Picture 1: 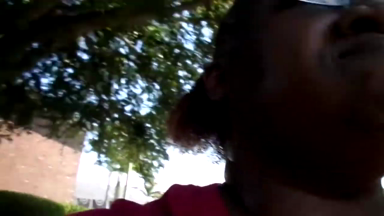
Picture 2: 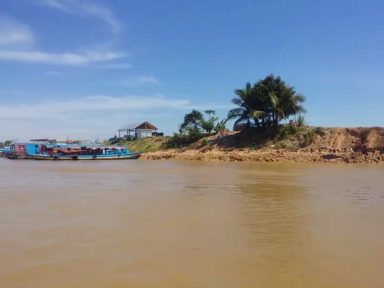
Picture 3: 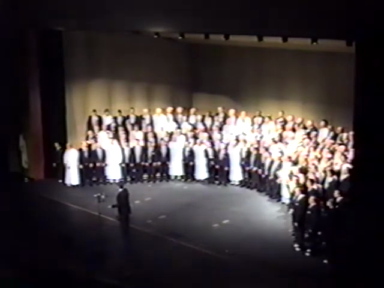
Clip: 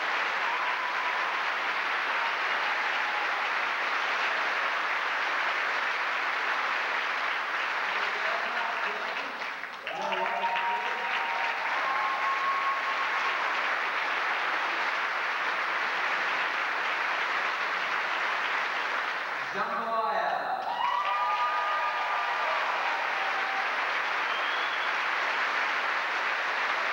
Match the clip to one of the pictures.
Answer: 3